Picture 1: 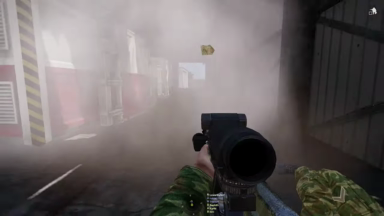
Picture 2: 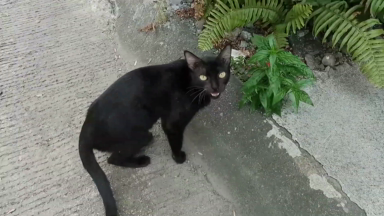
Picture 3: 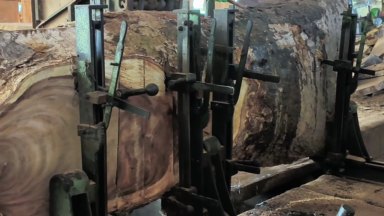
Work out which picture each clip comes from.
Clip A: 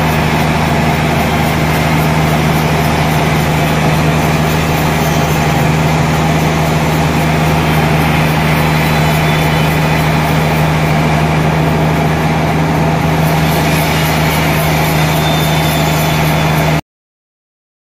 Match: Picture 3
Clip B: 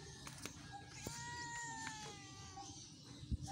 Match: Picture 2